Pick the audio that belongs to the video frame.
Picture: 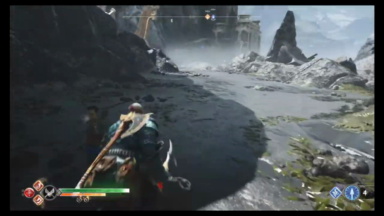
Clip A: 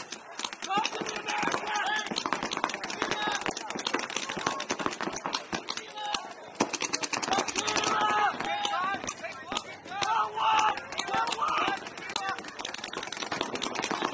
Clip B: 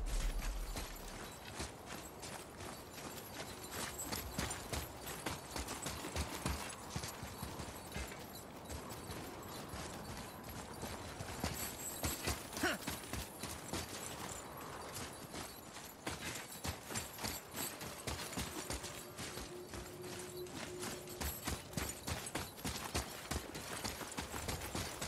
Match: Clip B